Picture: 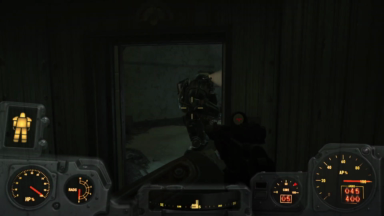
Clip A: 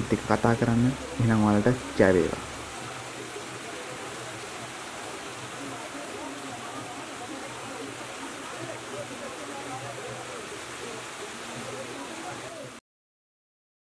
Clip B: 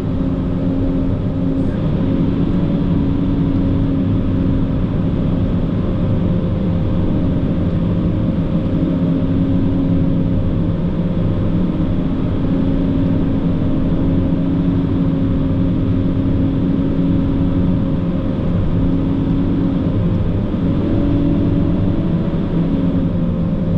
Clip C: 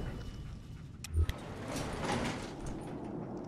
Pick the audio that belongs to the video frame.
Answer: C